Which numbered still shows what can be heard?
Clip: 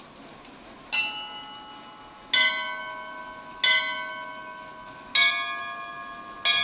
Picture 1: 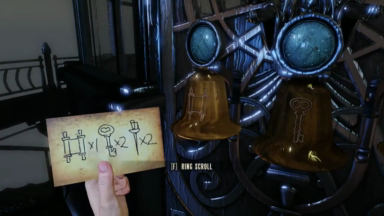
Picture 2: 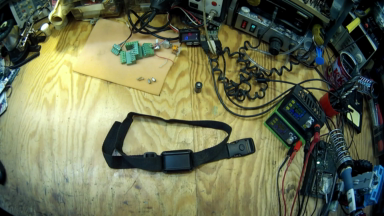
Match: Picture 1